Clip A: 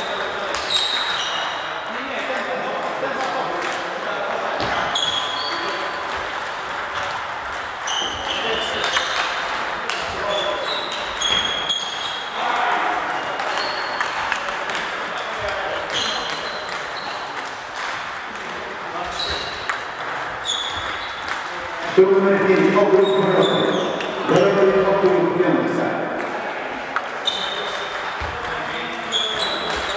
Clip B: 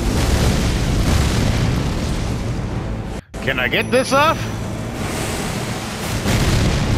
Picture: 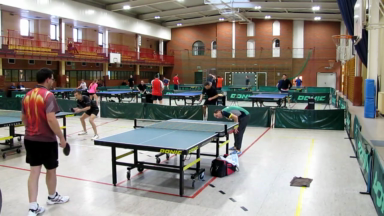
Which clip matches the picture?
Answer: A